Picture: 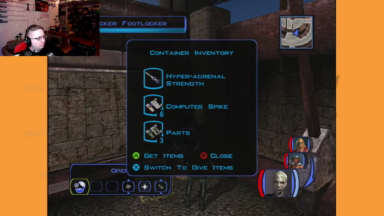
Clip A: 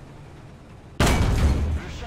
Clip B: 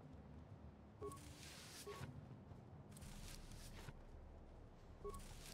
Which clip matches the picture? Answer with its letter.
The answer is B